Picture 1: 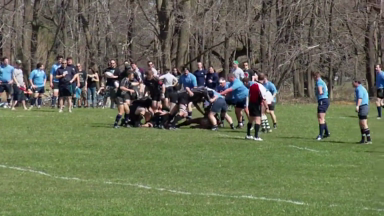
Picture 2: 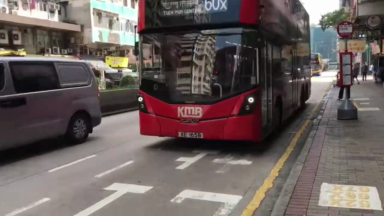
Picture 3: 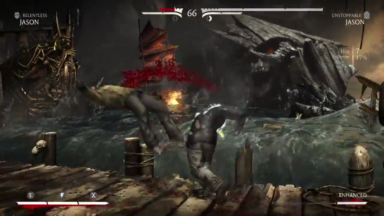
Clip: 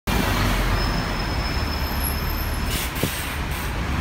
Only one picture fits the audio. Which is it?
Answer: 2